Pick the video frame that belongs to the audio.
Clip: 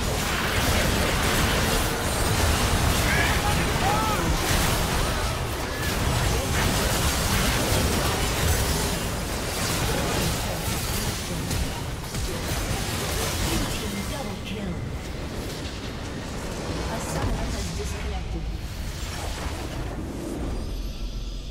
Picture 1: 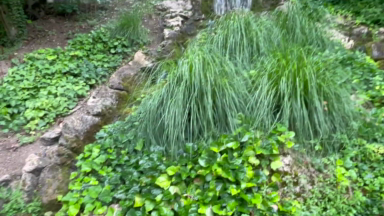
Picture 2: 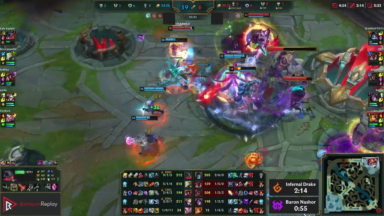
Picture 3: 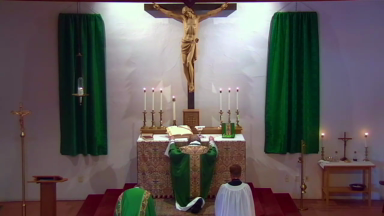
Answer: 2